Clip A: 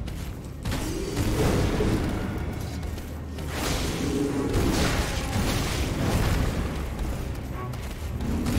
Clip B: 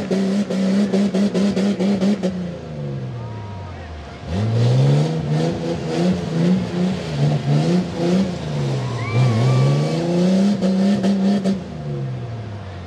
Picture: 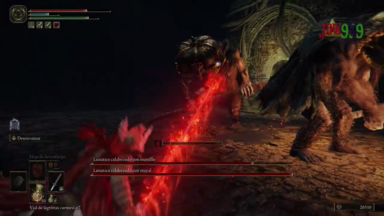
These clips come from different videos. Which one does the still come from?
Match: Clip A